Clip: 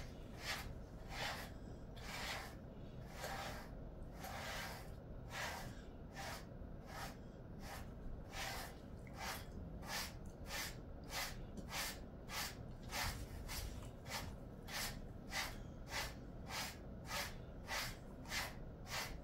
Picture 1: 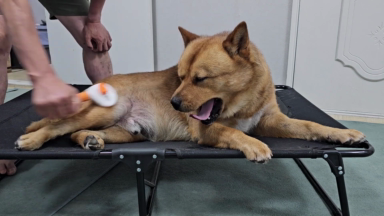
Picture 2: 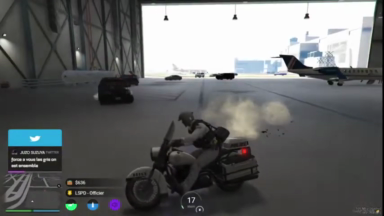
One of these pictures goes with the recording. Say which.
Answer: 1